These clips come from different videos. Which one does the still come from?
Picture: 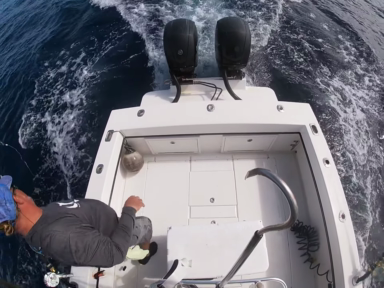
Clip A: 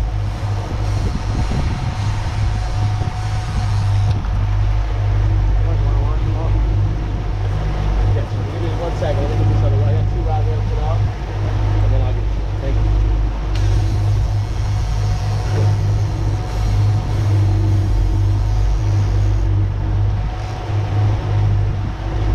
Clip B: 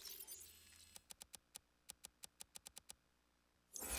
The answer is A